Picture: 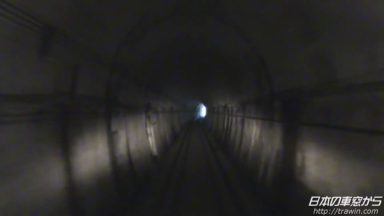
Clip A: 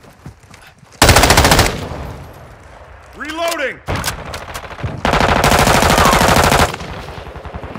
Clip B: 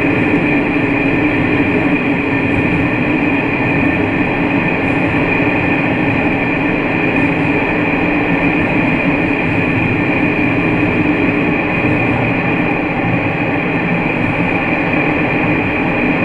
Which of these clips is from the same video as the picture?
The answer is B